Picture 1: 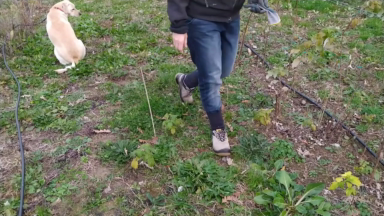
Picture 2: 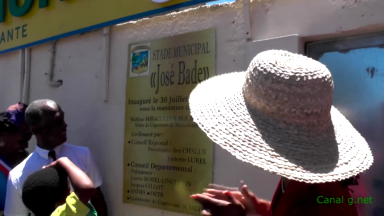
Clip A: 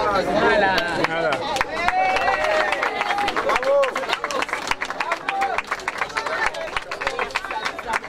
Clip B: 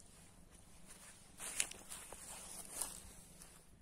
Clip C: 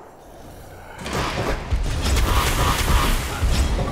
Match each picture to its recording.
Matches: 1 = B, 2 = A